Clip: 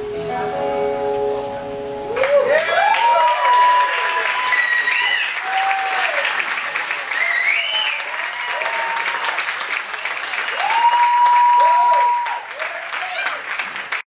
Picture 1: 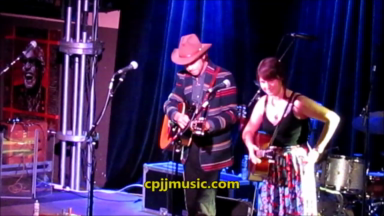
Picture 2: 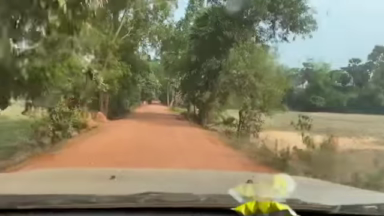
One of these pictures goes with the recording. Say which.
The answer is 1